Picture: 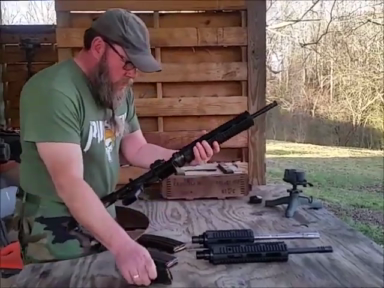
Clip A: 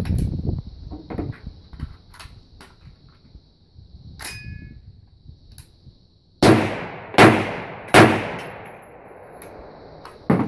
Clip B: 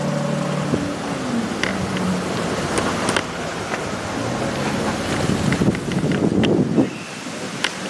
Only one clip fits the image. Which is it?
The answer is A